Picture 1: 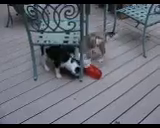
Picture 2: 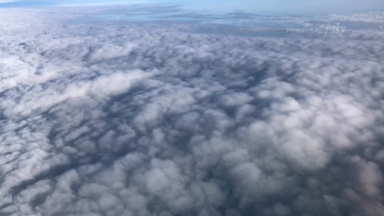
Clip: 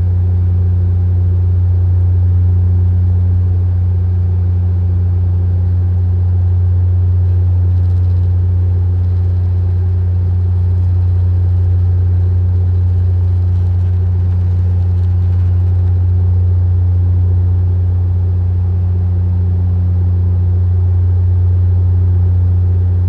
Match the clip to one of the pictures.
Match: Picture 2